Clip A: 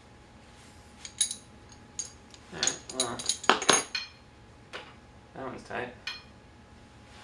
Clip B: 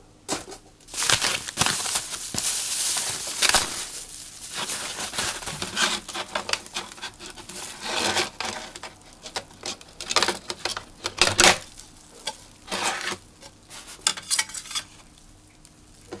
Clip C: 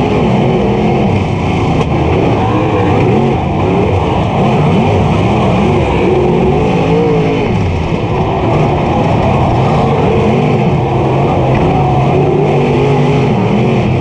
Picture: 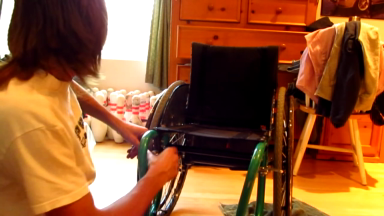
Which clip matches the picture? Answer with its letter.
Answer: A